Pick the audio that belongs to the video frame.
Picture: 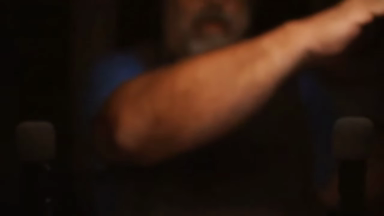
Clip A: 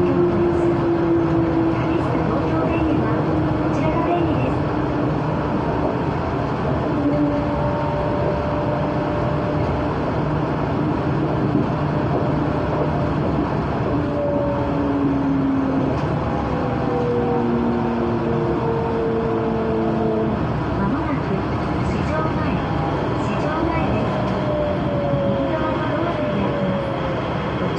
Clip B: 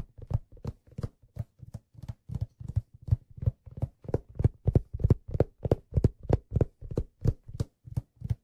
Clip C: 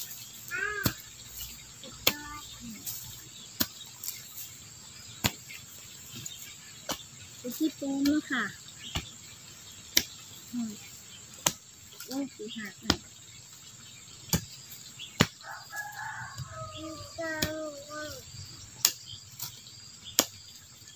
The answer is B